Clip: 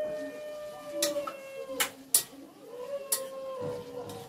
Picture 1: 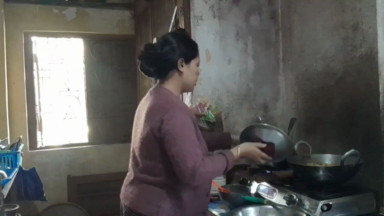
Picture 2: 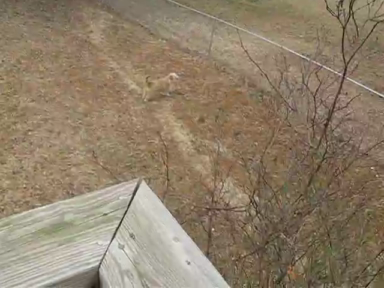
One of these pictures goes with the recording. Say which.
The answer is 1